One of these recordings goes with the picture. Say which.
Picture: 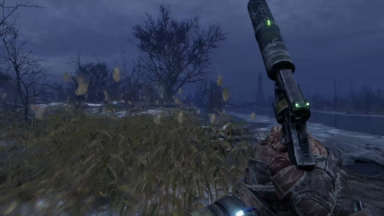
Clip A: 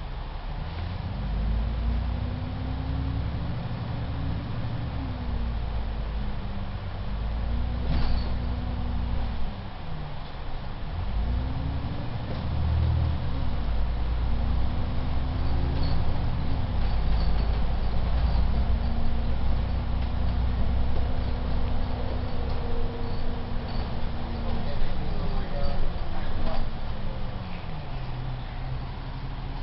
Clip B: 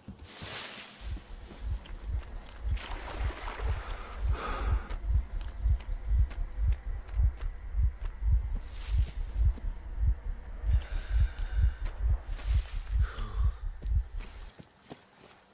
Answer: B